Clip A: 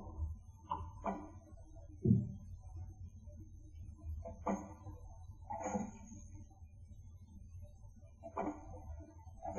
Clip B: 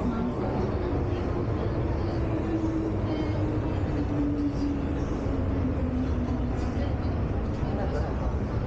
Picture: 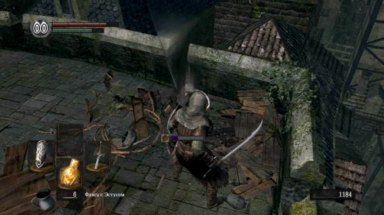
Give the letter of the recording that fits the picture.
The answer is A